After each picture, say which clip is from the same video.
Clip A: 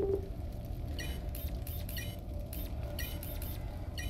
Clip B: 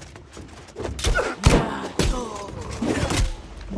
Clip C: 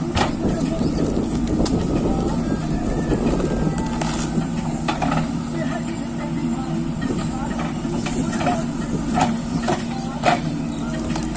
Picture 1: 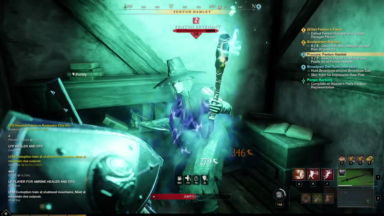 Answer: B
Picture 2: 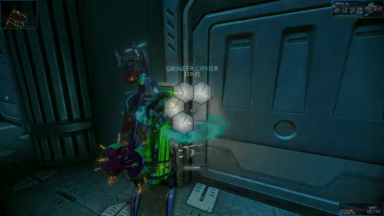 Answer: A